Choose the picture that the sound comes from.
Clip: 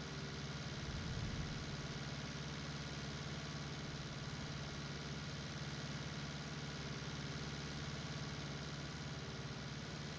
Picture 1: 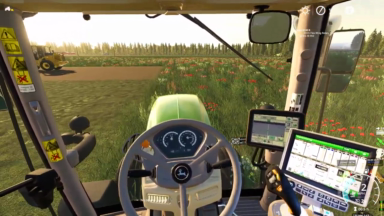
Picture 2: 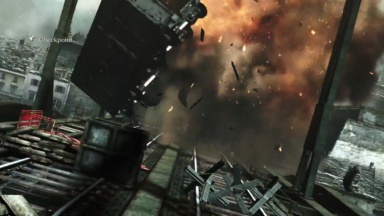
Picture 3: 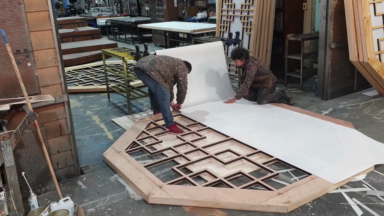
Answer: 1